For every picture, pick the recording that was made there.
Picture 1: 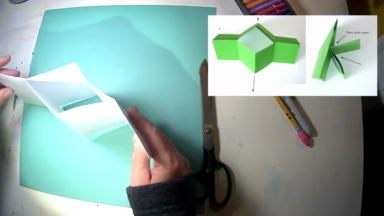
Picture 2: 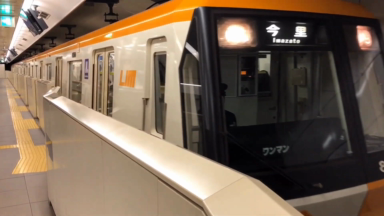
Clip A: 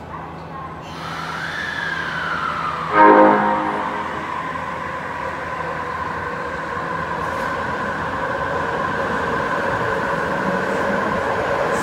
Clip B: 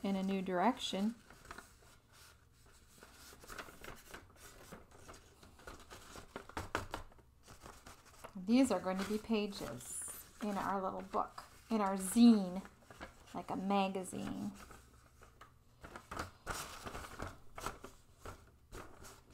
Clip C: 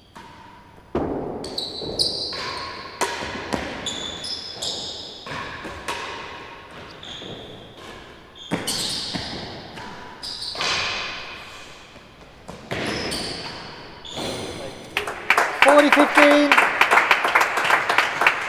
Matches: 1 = B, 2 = A